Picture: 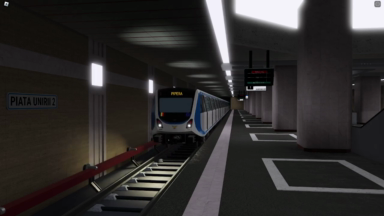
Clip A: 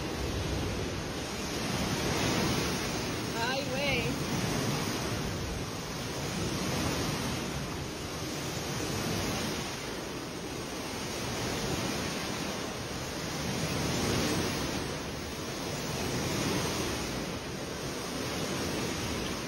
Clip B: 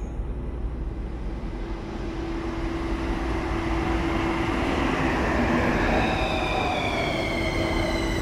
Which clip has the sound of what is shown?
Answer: B